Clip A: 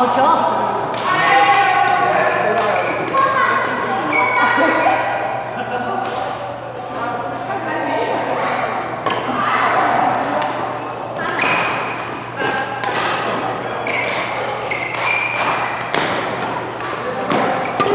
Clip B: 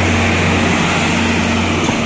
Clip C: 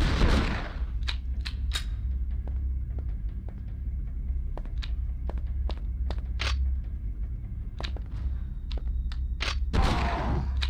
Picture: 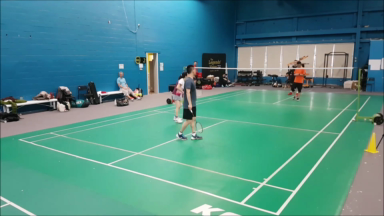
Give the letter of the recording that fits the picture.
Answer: A